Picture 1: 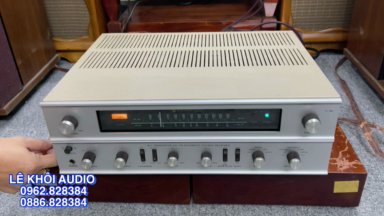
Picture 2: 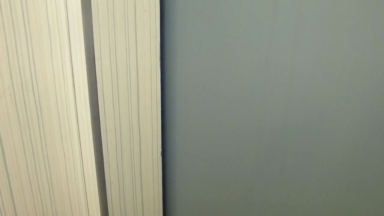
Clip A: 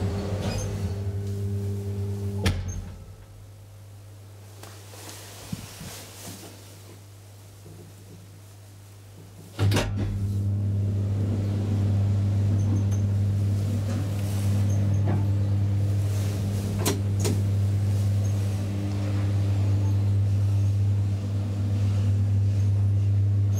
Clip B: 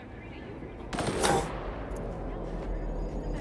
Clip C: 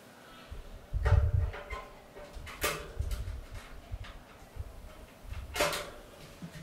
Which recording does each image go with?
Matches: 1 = C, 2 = A